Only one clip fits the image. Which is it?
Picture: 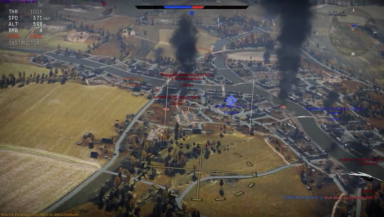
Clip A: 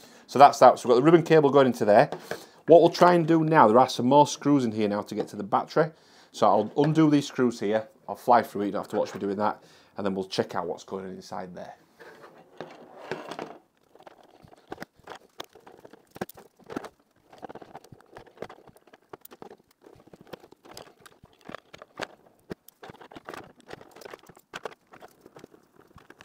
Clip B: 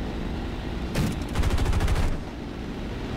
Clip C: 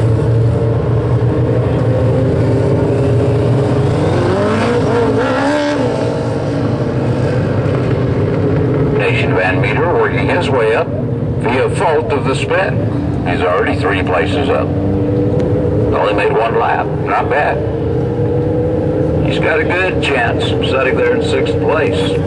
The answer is B